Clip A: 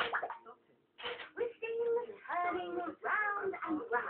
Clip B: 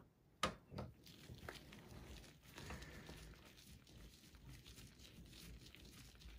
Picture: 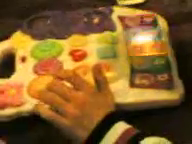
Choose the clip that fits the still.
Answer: A